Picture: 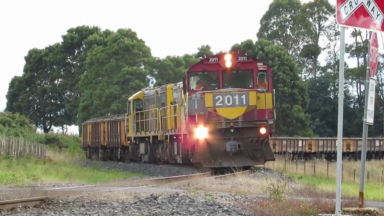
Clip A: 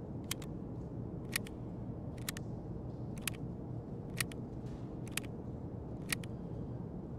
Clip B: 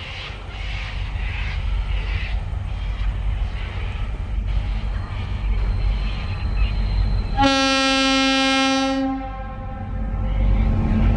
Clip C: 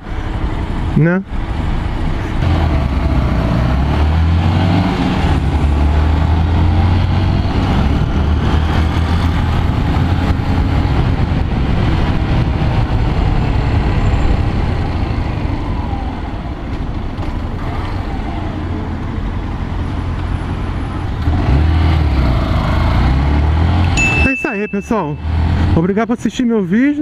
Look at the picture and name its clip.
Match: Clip B